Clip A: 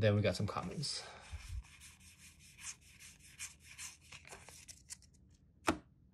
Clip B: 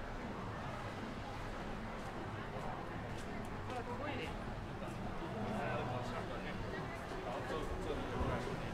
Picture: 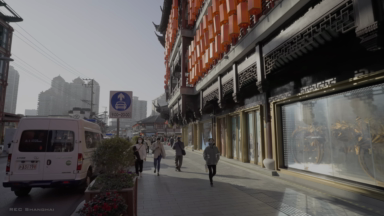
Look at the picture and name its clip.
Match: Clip B